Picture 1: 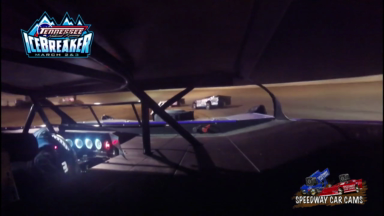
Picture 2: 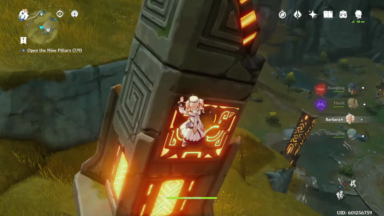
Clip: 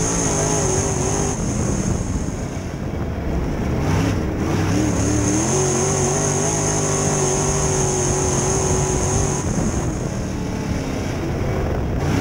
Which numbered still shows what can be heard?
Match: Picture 1